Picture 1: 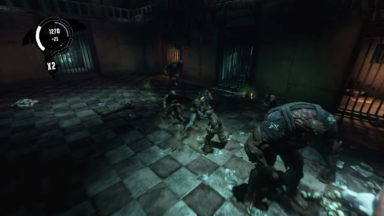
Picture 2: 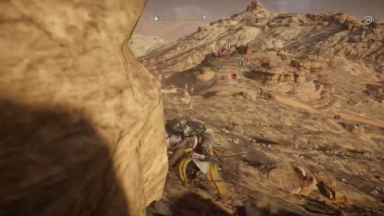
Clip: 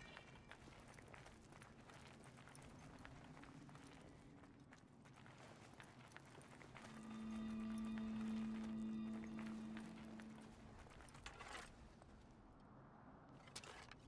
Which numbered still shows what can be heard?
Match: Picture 2